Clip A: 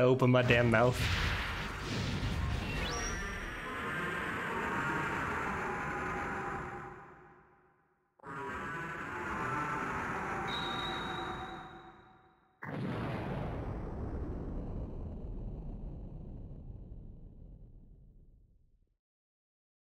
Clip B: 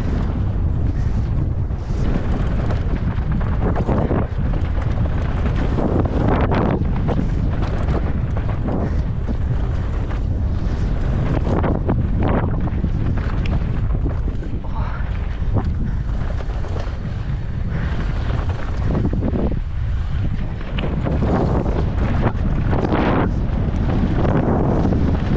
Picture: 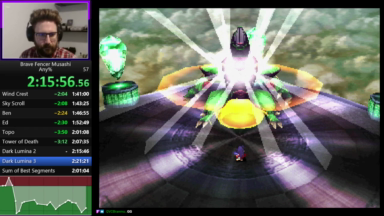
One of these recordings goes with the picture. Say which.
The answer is A